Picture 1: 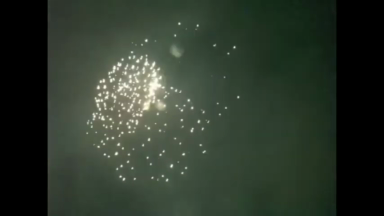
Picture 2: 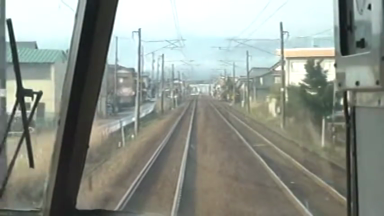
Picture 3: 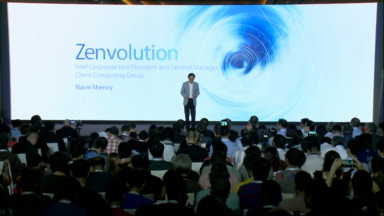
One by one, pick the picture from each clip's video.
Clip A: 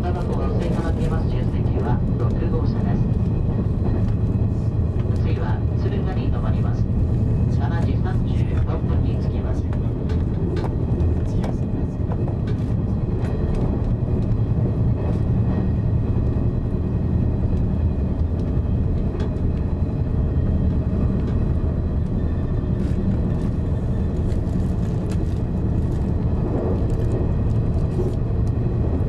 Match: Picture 2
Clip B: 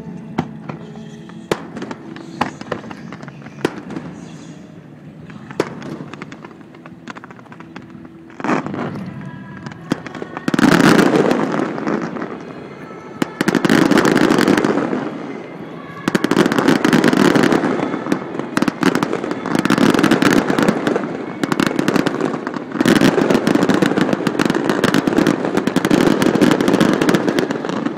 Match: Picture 1